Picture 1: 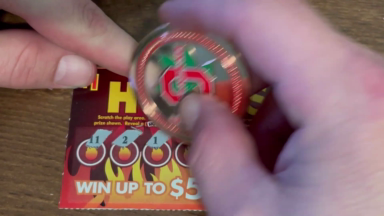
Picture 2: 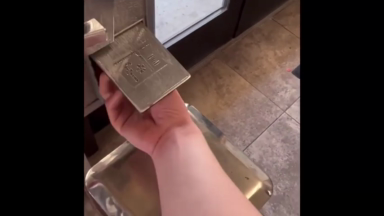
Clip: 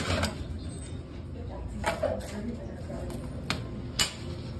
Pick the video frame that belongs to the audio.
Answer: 2